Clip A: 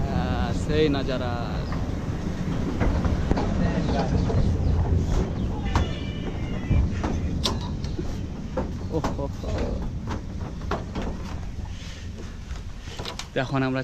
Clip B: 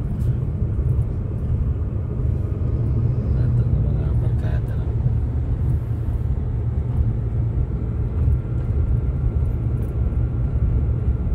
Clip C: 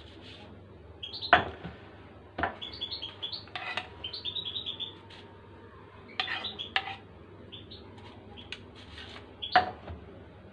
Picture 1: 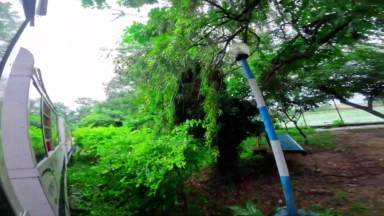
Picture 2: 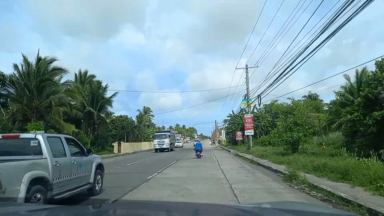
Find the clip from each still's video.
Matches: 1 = A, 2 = B